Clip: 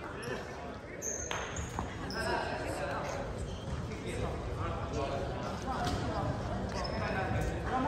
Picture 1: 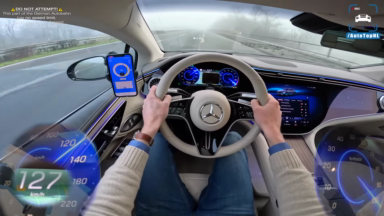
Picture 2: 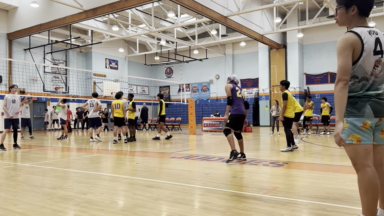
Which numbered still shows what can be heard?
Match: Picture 2